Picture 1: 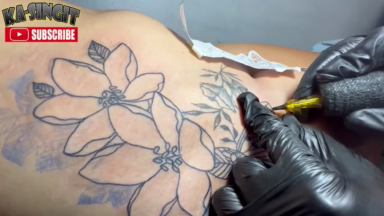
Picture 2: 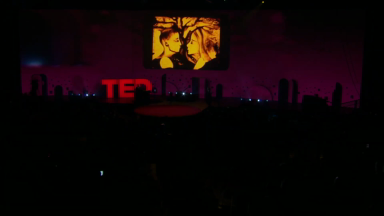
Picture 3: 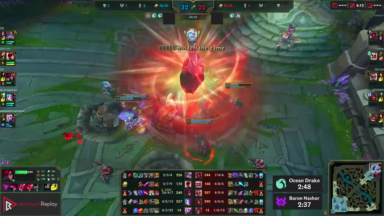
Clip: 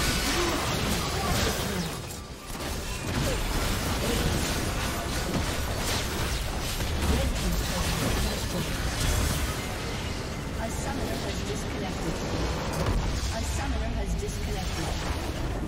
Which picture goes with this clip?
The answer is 3